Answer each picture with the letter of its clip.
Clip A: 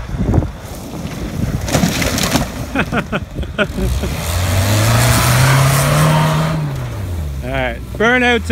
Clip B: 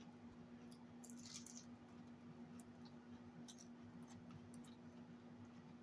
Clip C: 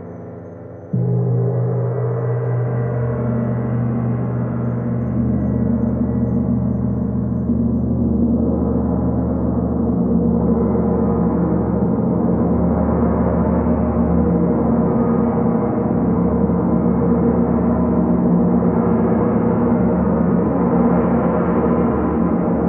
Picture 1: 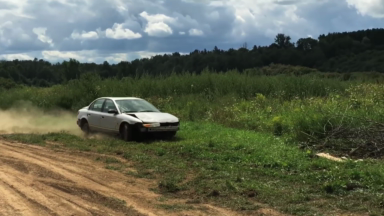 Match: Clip A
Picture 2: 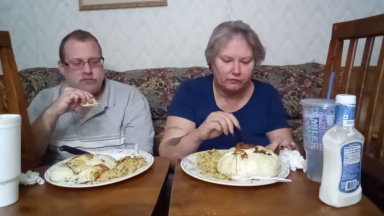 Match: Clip B